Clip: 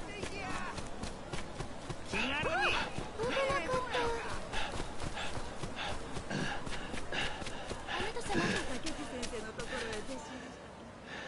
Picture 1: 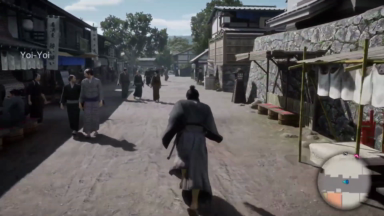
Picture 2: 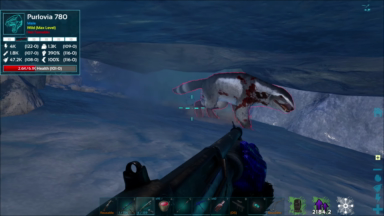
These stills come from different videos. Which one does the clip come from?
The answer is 1